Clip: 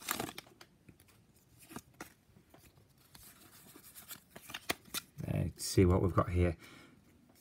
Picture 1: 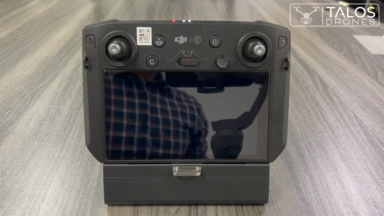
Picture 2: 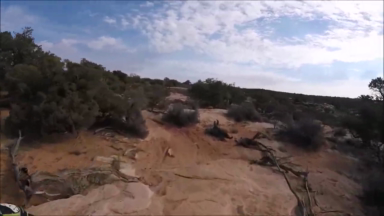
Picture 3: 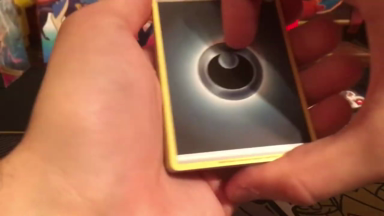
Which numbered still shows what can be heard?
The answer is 3